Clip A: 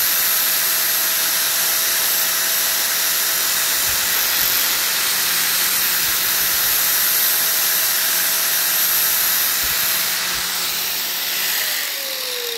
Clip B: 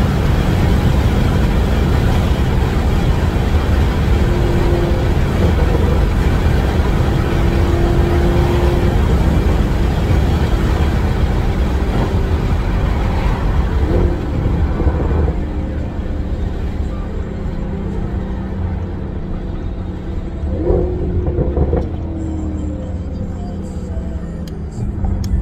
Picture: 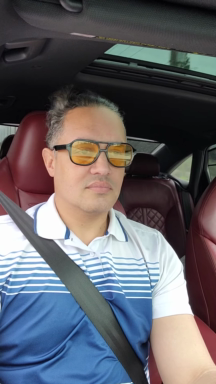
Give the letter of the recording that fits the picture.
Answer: B